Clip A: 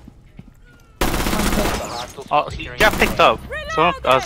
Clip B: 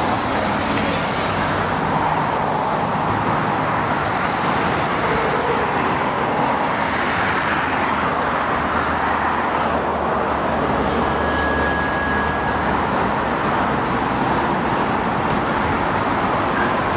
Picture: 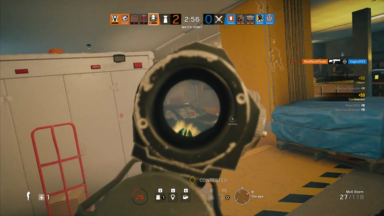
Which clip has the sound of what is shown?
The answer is A